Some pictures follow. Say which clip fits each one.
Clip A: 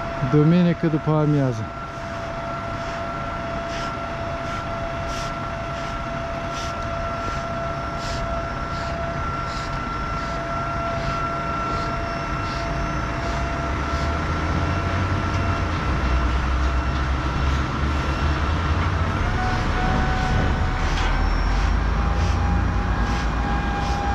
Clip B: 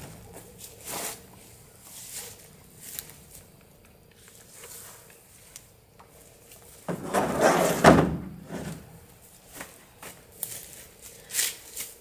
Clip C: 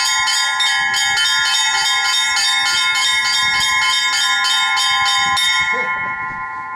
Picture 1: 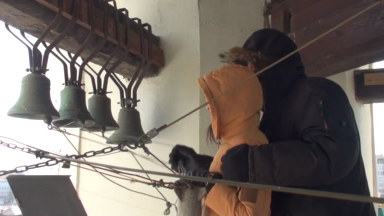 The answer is C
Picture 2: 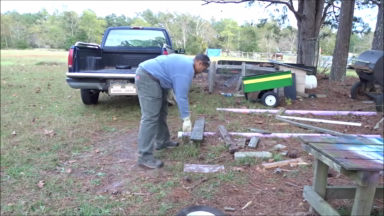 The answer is B